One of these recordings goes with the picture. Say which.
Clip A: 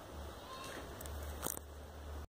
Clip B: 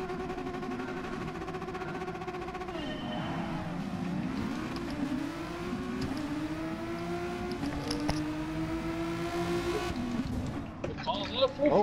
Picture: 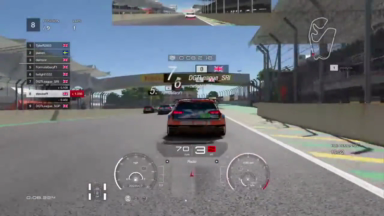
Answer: B